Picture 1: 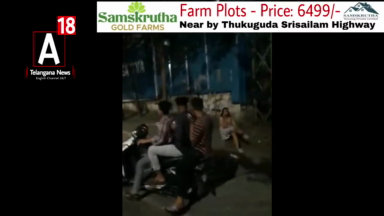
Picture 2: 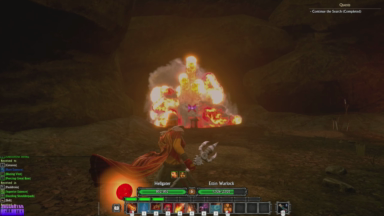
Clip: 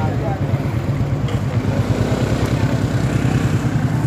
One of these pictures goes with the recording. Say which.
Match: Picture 1